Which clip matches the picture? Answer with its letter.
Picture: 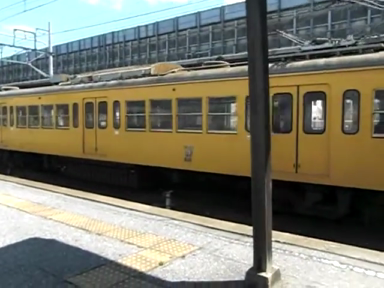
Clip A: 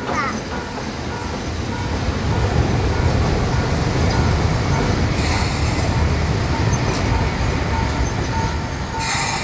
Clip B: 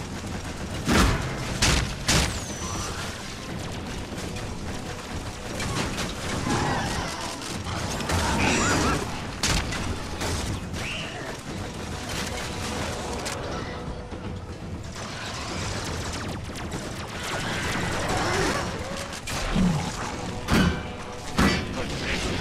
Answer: A